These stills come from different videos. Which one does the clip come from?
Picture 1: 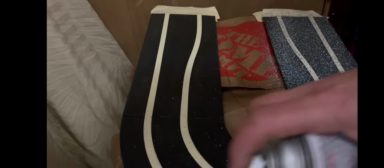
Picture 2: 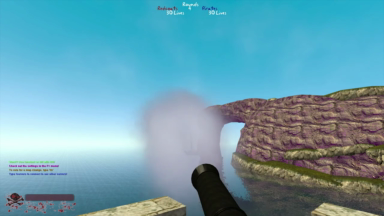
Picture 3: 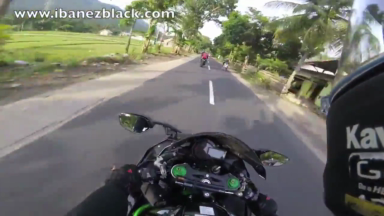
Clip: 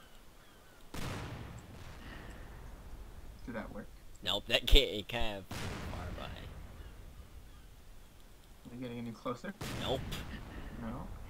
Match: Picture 2